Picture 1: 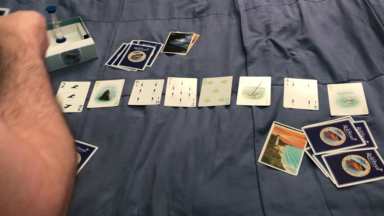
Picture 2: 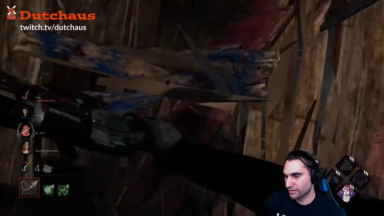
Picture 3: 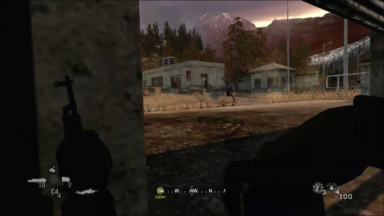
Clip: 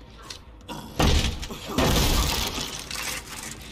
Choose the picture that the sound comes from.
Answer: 2